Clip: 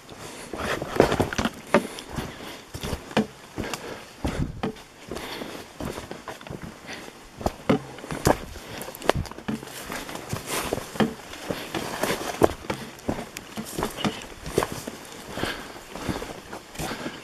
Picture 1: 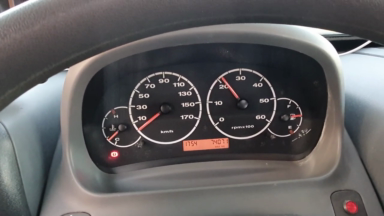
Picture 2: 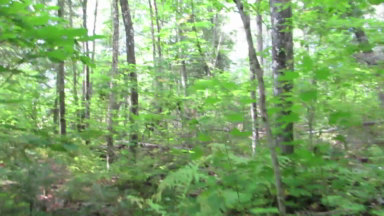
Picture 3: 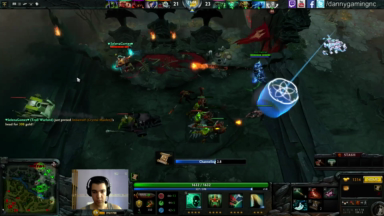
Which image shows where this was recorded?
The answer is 2